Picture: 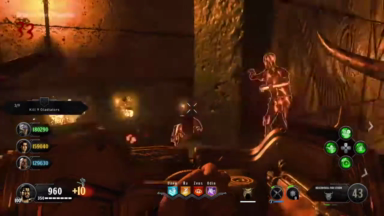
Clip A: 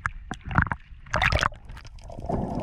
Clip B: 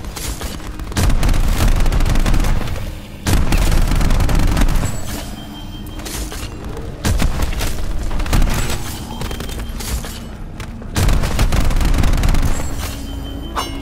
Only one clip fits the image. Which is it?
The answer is B